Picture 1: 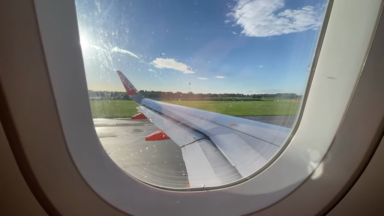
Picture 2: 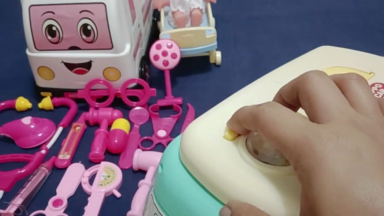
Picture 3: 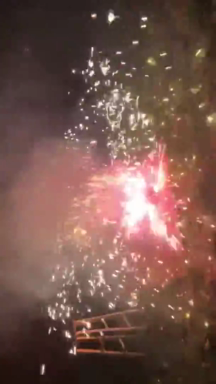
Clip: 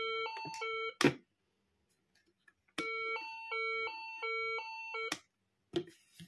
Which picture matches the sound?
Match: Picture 2